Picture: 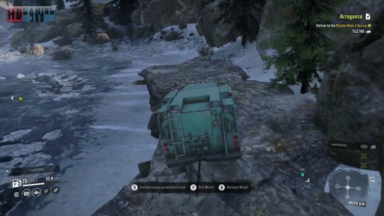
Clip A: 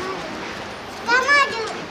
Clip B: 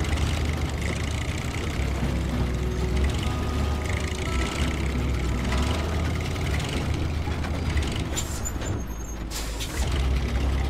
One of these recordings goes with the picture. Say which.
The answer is B